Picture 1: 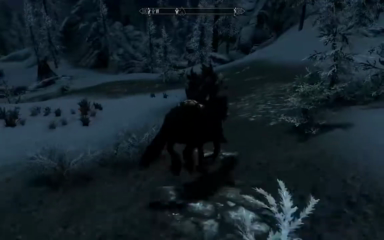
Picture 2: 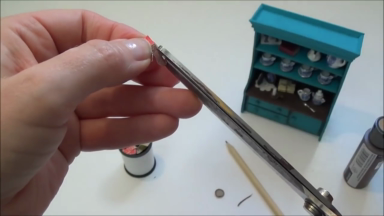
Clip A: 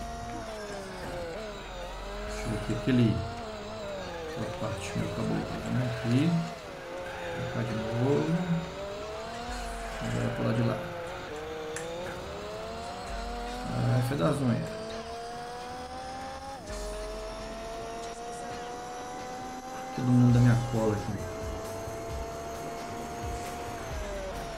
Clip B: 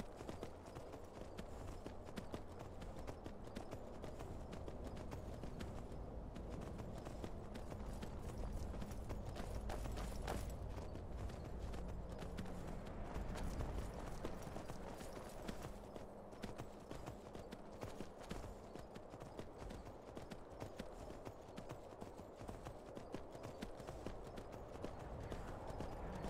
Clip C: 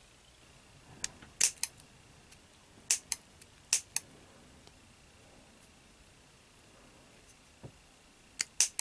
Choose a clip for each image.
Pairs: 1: B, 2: C